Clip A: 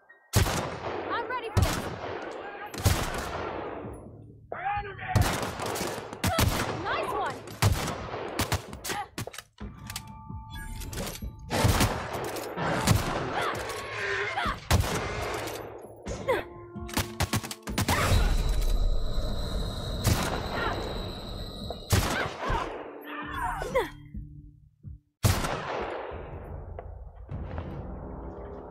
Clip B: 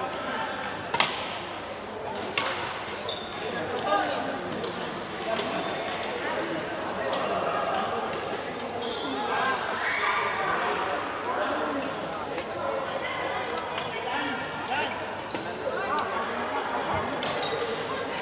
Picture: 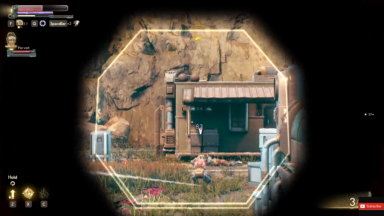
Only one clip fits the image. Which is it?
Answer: A